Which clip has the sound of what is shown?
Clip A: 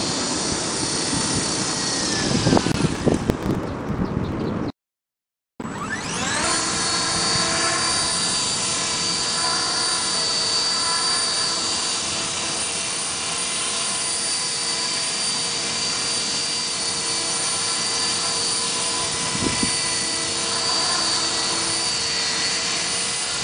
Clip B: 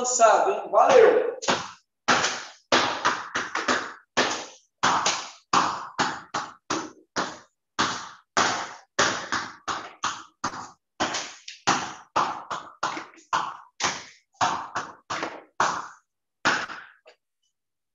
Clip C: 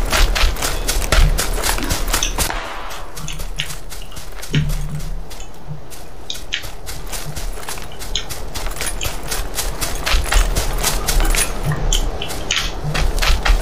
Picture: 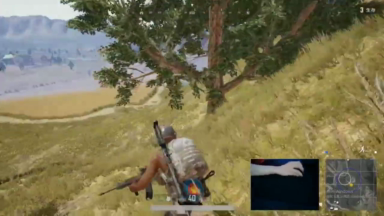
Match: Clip C